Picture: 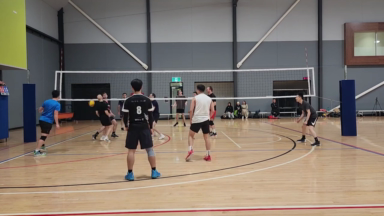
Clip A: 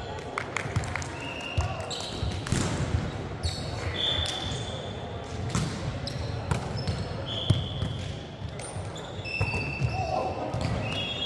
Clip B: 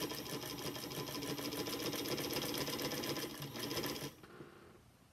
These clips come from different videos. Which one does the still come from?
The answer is A